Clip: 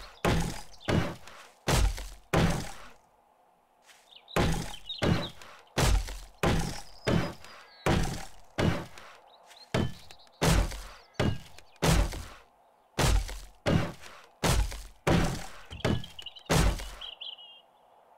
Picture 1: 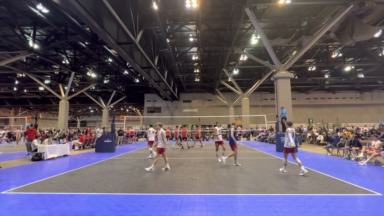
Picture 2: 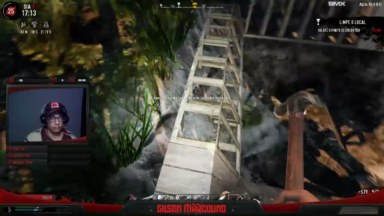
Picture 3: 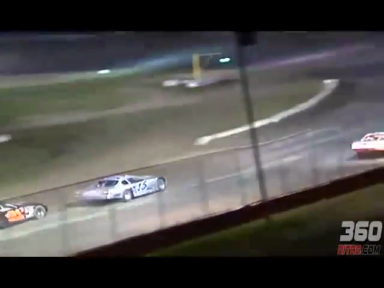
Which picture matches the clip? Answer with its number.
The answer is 2